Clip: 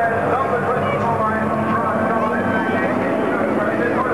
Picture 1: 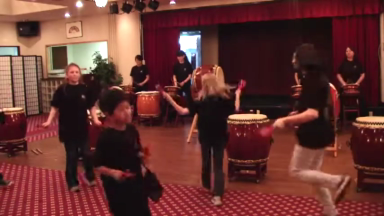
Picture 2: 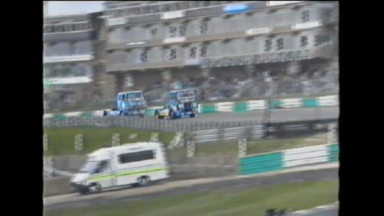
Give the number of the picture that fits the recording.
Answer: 2